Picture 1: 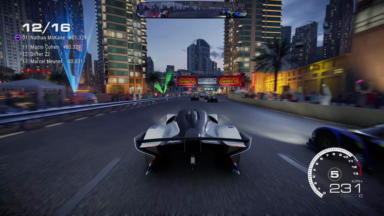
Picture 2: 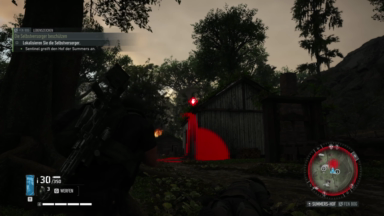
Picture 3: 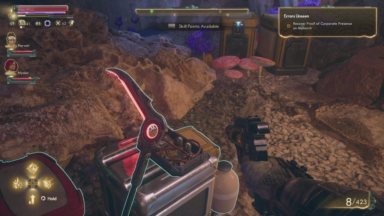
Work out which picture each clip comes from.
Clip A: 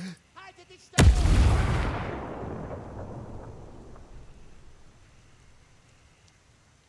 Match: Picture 2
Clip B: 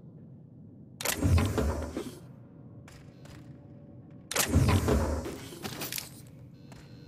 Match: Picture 3